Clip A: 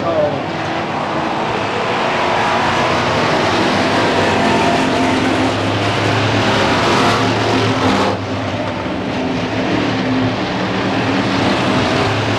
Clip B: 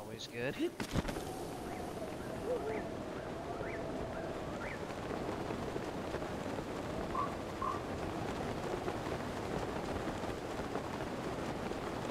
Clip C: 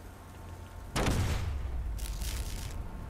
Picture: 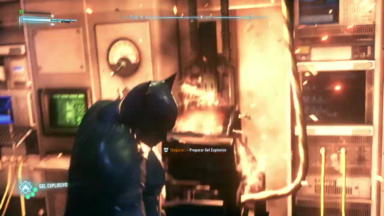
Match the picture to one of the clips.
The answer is C